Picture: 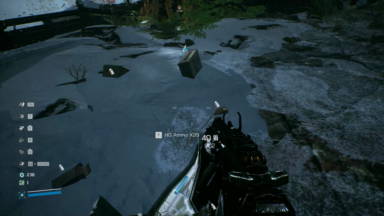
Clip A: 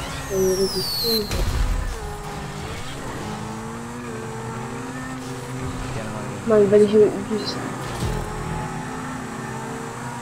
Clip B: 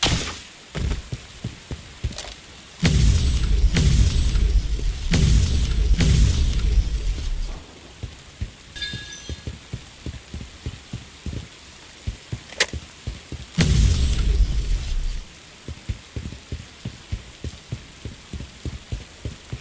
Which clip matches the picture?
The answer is B